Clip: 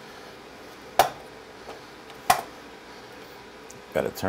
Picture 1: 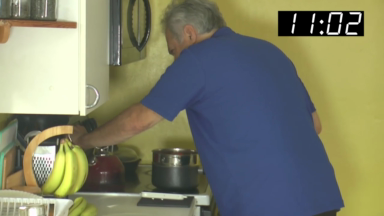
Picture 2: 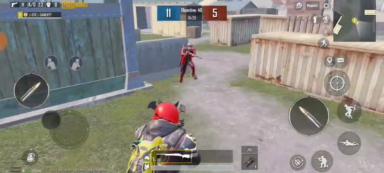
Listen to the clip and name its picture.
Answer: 1